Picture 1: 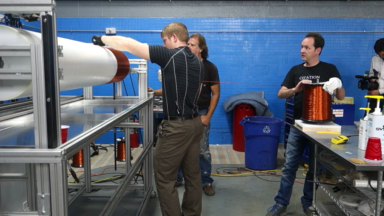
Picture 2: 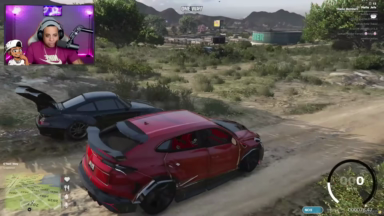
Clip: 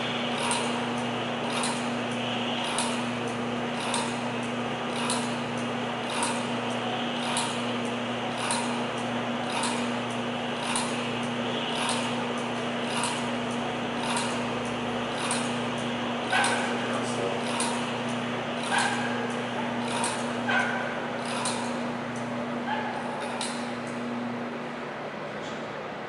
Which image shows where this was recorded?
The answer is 1